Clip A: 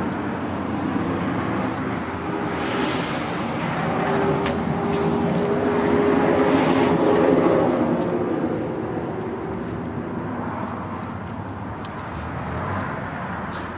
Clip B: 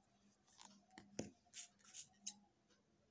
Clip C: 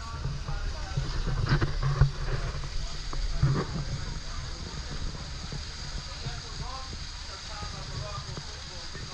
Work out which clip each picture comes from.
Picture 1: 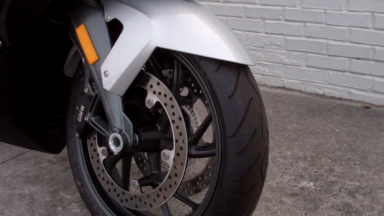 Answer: A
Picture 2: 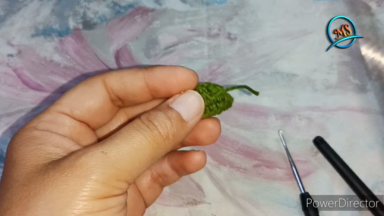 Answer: B